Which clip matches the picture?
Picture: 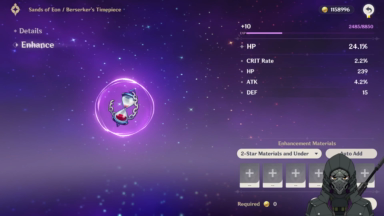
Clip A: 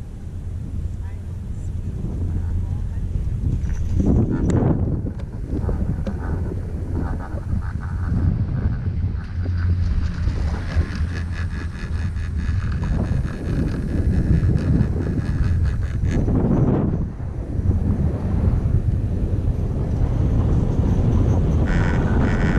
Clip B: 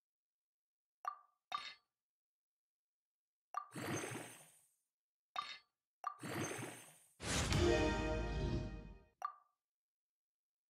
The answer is B